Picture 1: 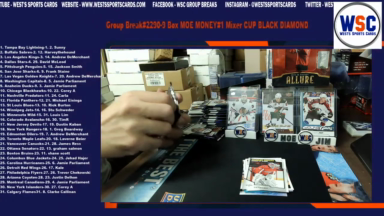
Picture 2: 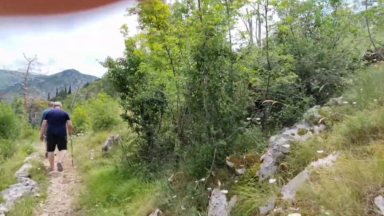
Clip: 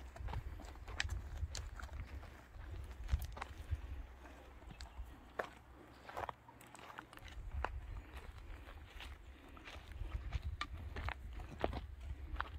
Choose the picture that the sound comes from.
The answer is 2